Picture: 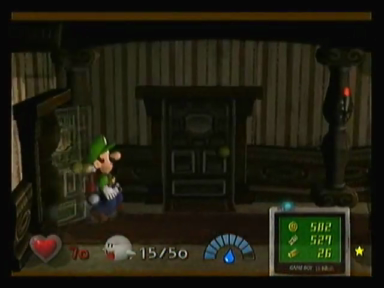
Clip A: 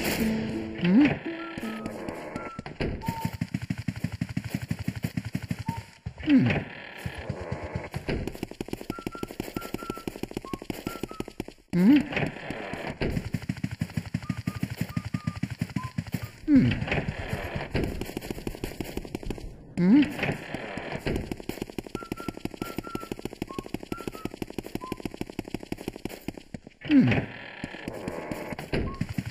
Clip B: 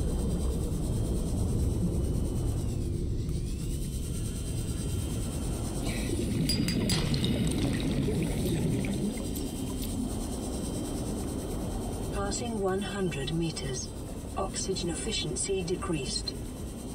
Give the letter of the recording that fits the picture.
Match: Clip A